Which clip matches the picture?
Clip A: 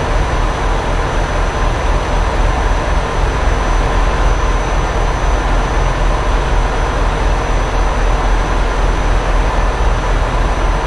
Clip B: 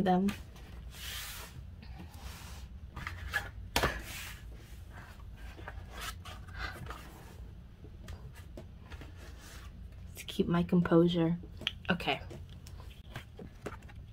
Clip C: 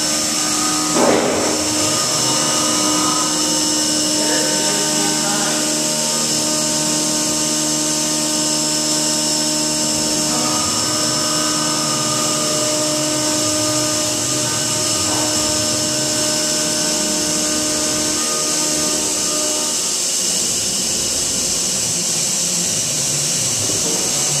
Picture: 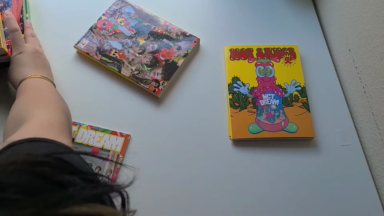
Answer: B